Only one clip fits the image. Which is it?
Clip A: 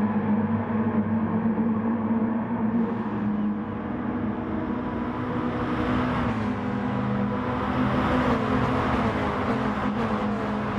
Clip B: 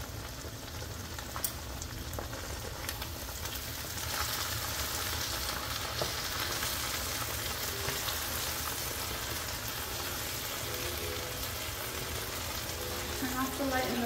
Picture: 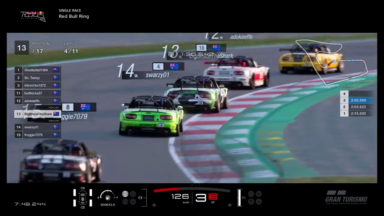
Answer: A